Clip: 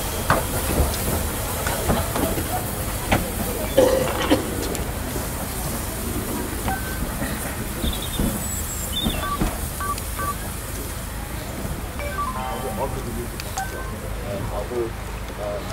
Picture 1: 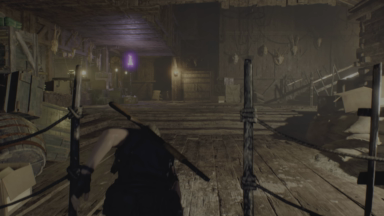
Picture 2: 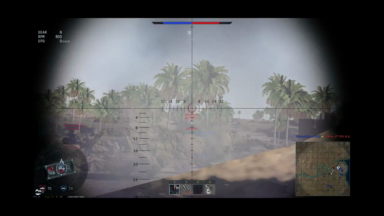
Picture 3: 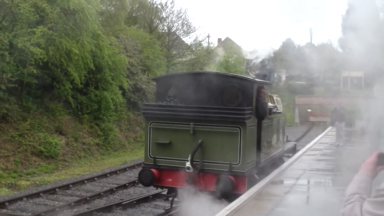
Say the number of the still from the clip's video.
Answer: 3